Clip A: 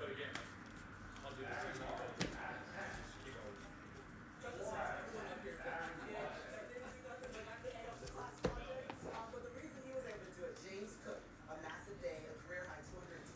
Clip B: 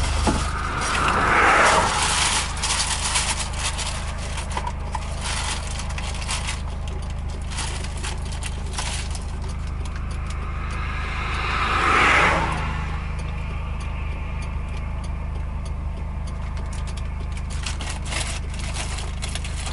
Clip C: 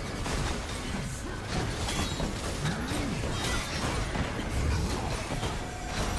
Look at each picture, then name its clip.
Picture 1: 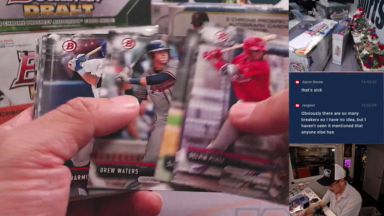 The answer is A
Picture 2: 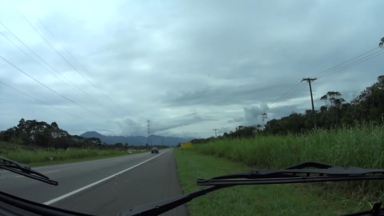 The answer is B